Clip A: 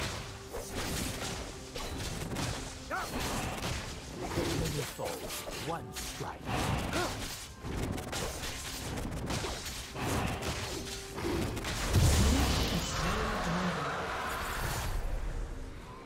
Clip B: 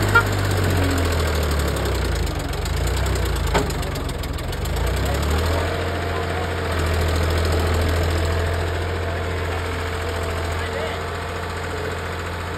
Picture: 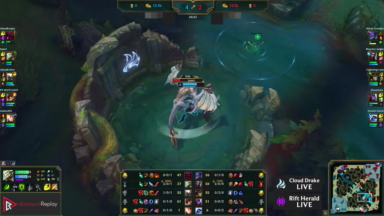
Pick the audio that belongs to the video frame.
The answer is A